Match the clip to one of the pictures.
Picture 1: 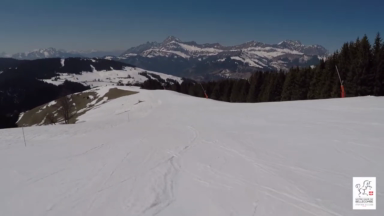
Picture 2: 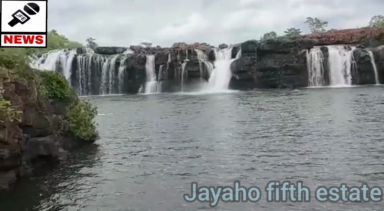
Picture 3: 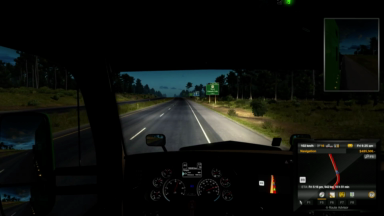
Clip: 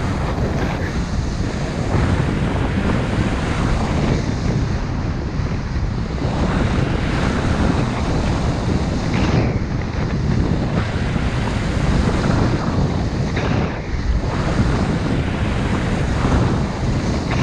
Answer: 1